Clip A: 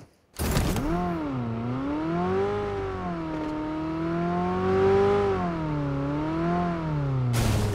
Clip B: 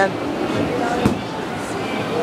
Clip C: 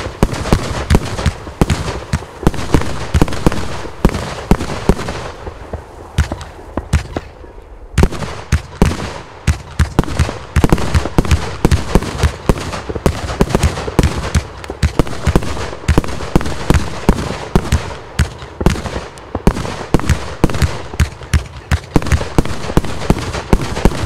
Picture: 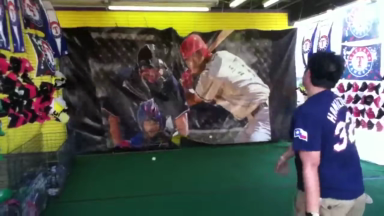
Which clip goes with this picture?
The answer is B